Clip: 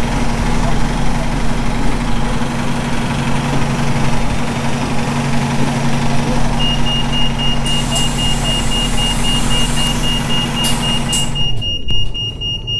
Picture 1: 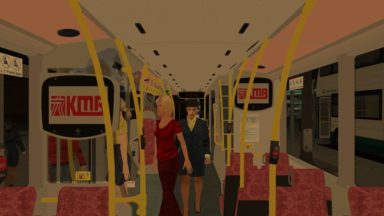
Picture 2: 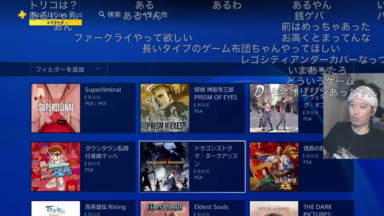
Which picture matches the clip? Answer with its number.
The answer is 1